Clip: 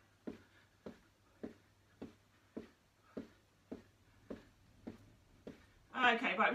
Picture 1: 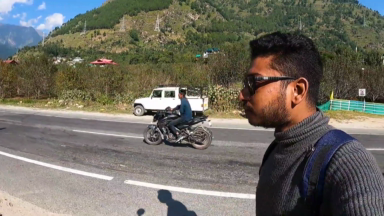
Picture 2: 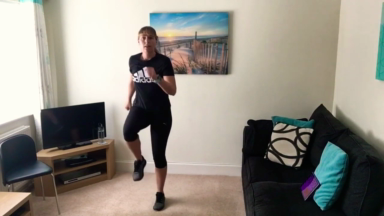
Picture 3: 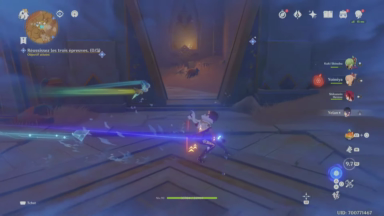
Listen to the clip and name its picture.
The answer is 2